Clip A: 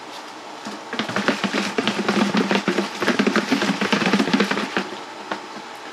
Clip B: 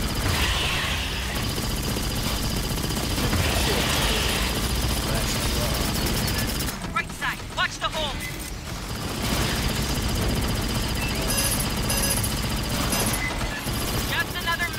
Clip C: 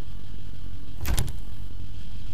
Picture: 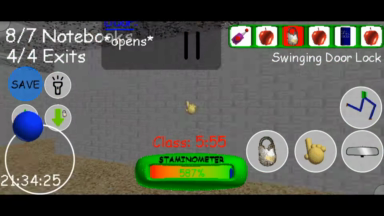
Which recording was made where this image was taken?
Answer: C